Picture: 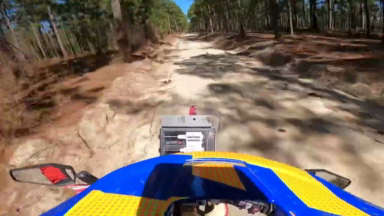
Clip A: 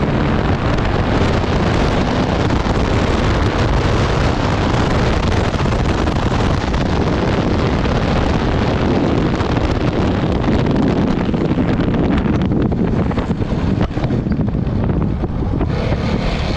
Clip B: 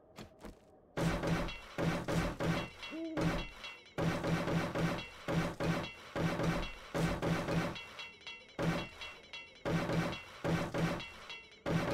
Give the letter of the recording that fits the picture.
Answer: A